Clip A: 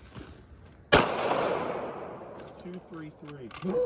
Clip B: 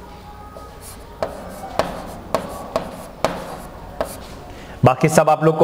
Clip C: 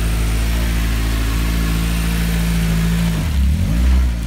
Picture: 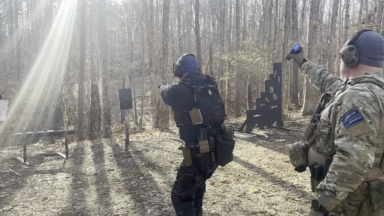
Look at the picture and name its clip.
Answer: A